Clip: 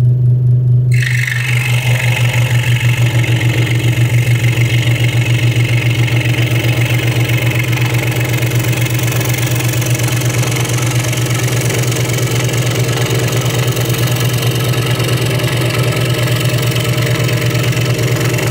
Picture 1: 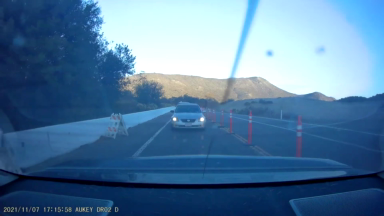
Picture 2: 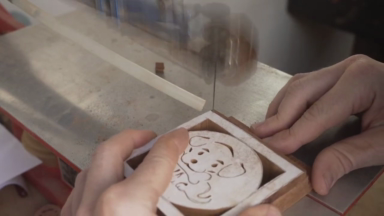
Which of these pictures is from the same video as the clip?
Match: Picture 2